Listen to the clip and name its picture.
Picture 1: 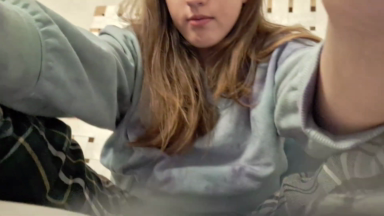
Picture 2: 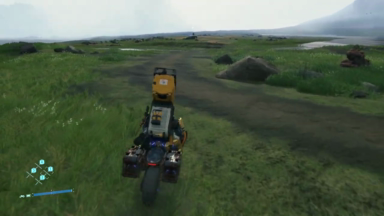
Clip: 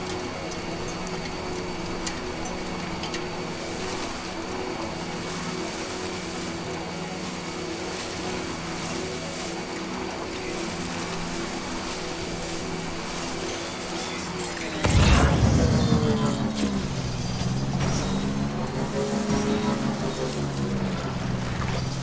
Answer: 2